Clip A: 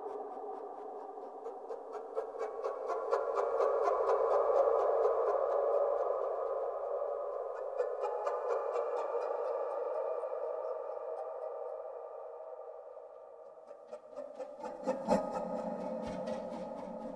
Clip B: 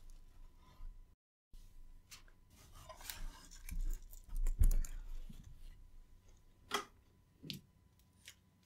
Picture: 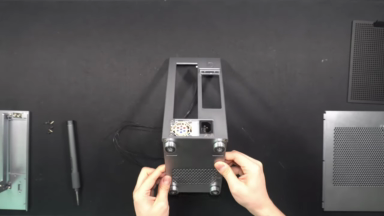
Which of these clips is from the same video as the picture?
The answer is B